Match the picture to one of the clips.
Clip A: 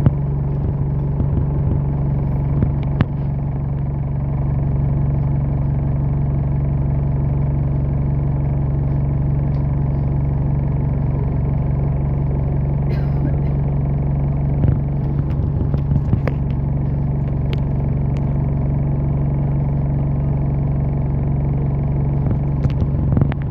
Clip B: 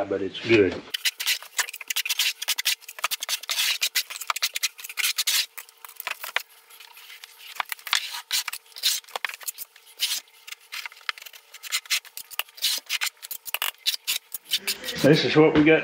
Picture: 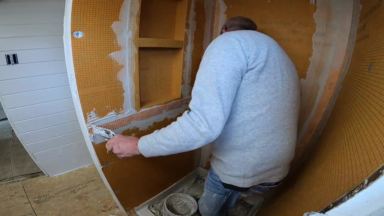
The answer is B